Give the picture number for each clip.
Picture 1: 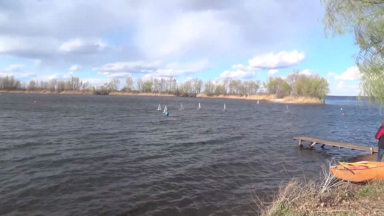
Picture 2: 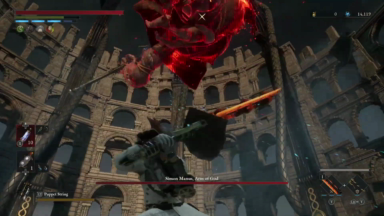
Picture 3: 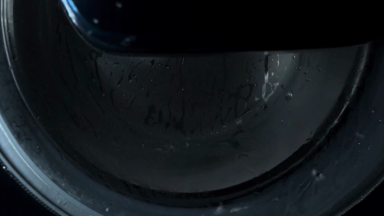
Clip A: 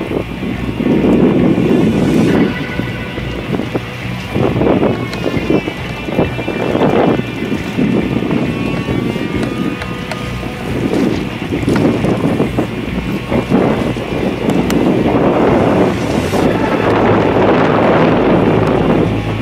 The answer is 1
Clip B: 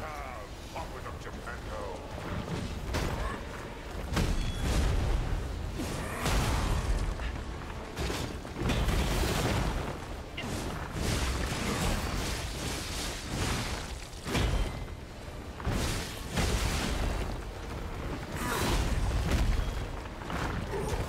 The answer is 2